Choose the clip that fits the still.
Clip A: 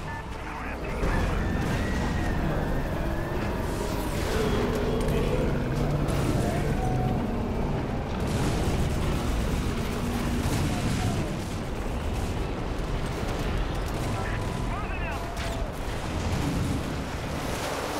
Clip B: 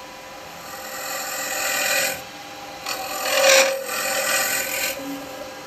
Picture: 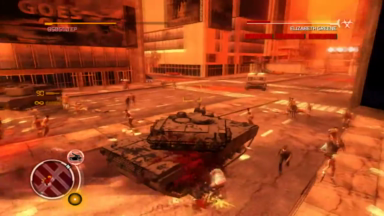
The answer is A